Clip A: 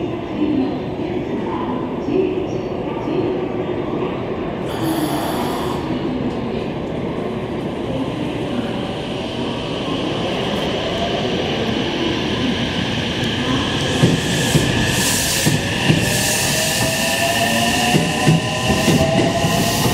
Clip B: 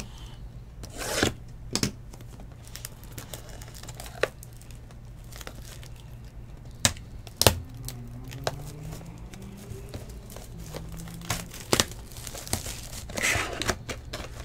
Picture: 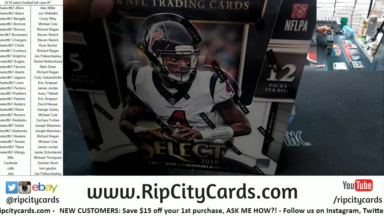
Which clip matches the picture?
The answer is B